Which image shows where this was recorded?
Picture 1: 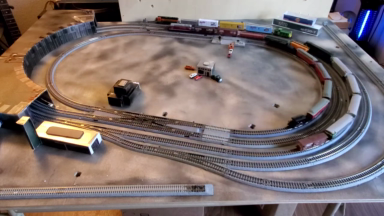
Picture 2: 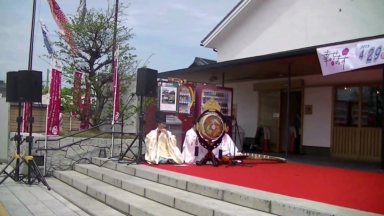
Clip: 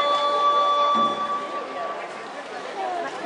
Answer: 2